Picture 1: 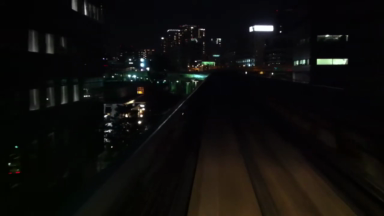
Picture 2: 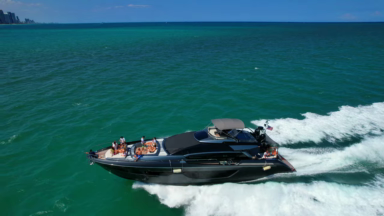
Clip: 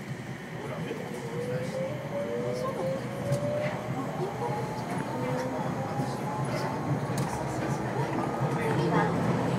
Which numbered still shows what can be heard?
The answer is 1